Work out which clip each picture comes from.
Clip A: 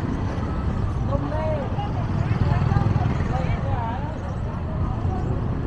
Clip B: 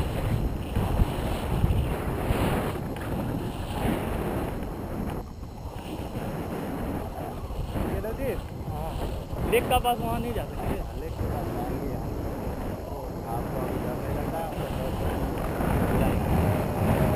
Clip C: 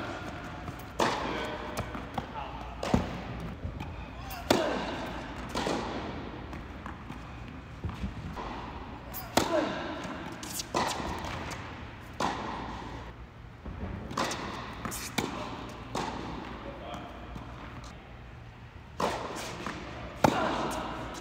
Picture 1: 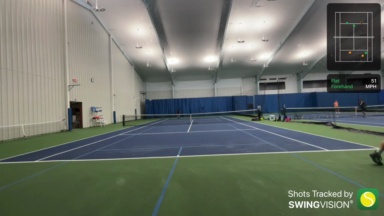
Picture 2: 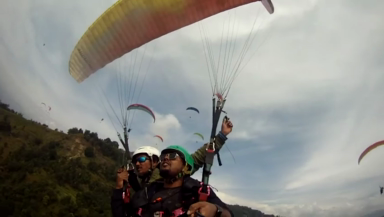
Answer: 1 C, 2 B